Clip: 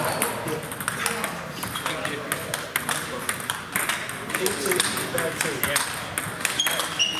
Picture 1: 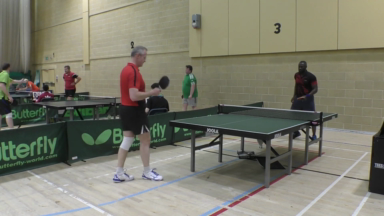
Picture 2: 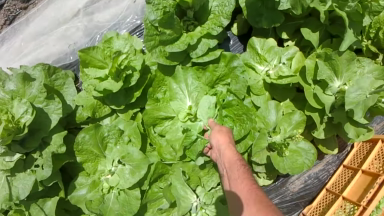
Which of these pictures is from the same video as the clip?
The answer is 1